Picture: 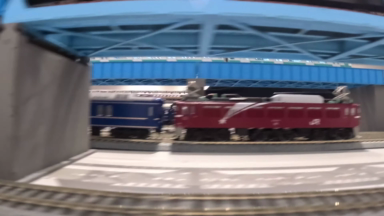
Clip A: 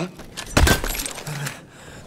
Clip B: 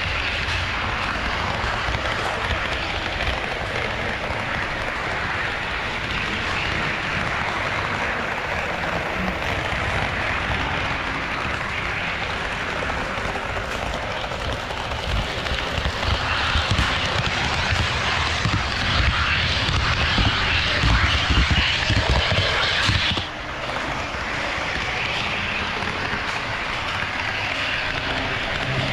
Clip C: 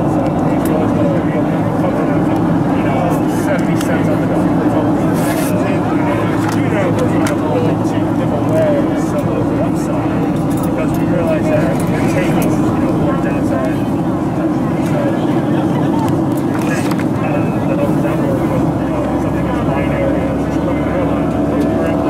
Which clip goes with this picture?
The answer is B